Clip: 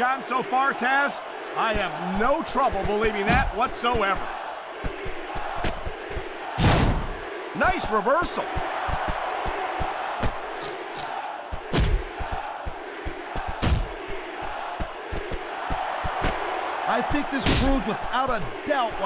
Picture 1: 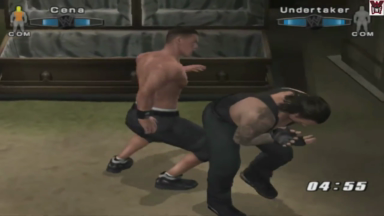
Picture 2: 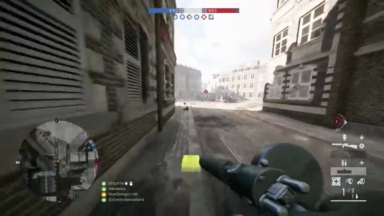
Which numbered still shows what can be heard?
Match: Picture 1